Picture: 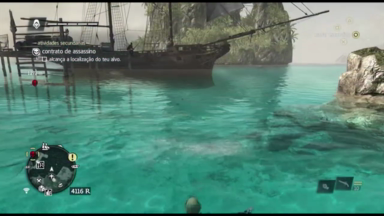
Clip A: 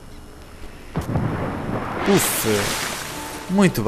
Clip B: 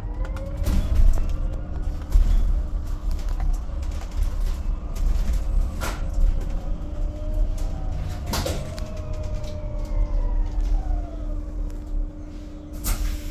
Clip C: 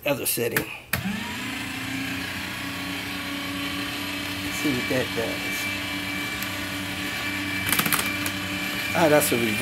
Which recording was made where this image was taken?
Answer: A